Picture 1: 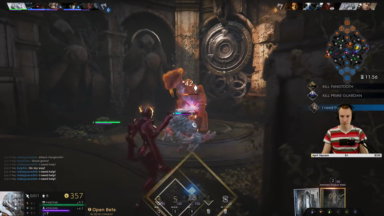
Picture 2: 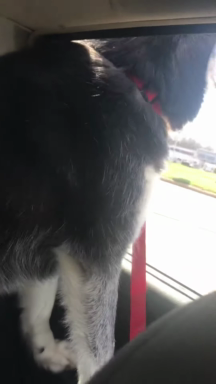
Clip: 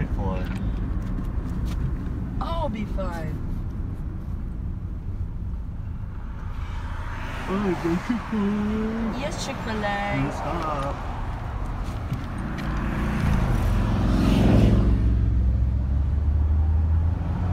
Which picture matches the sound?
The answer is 2